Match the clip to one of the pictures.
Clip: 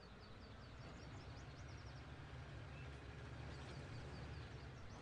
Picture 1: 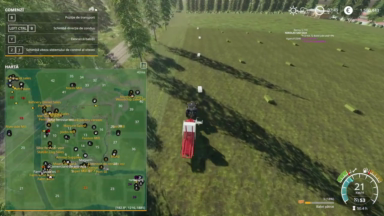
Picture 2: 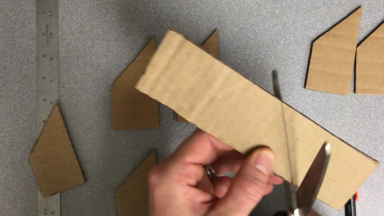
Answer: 1